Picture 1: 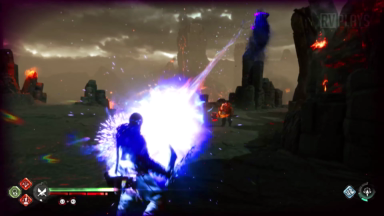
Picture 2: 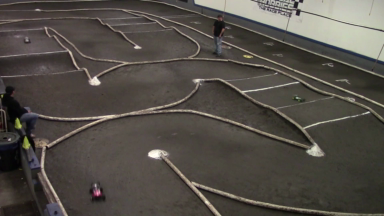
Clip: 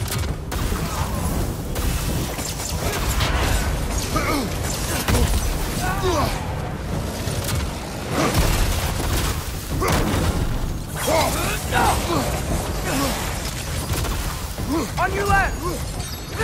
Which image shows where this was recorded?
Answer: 1